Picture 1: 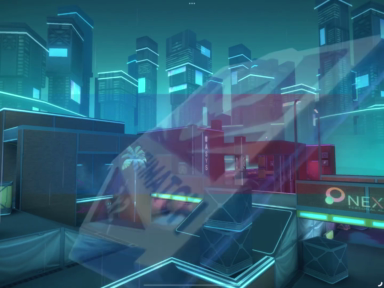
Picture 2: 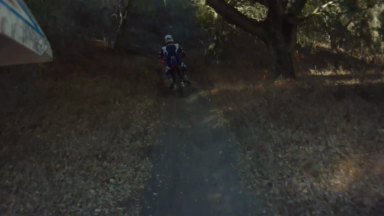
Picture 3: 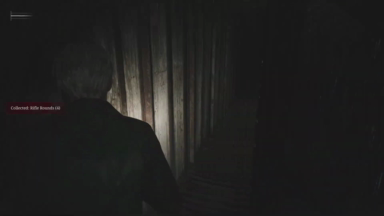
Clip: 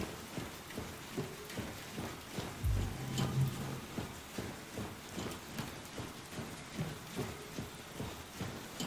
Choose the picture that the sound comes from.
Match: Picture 3